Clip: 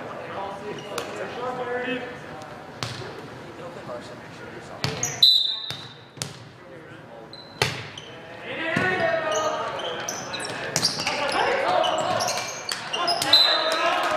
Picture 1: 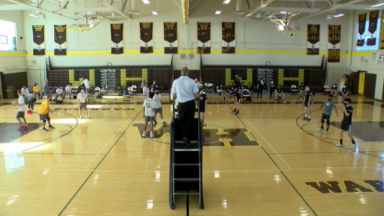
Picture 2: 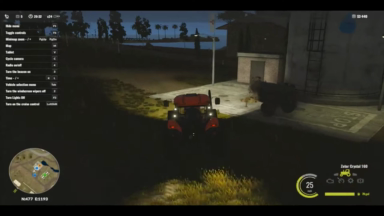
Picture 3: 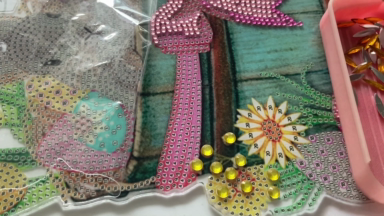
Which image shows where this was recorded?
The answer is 1